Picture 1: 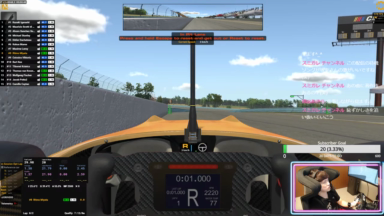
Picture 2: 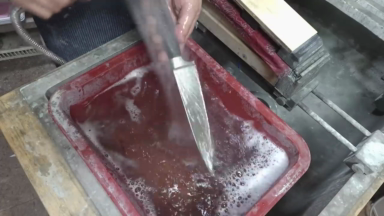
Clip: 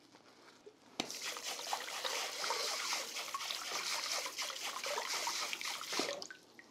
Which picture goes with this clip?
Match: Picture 2